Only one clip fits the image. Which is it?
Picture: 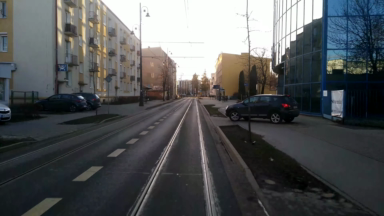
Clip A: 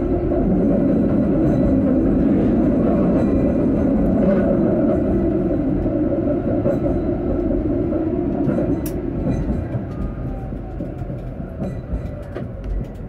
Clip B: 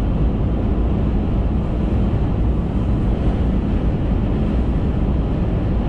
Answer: A